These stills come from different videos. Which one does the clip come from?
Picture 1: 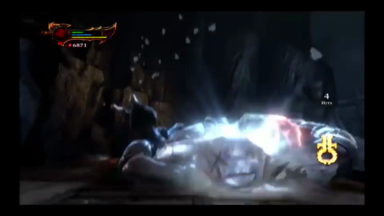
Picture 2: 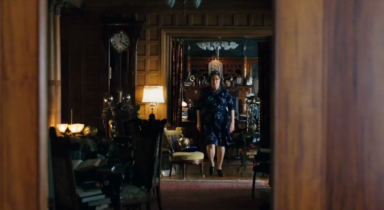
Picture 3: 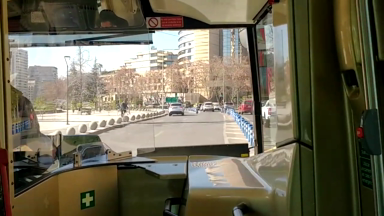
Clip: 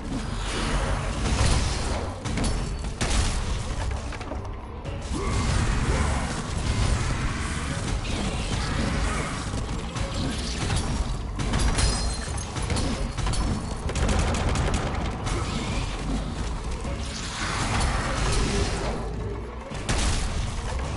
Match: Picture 1